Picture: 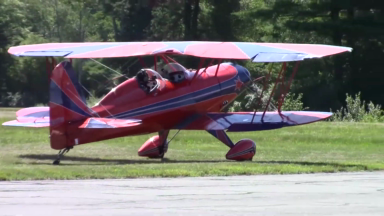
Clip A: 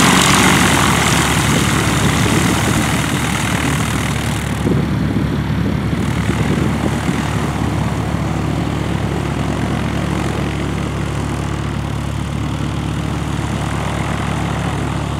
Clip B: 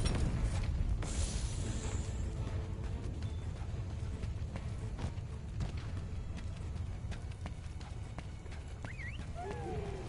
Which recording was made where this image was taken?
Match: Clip A